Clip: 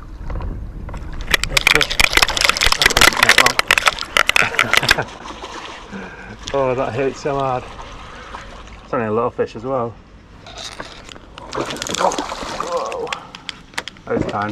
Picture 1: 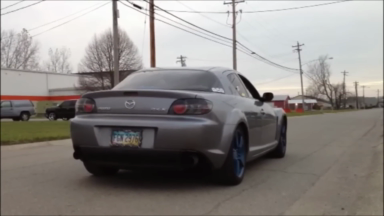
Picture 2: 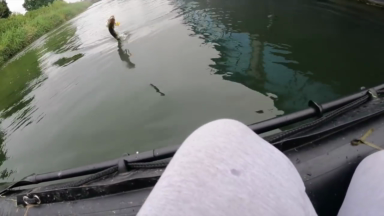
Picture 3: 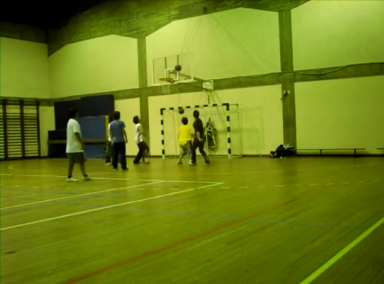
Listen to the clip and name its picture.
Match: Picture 2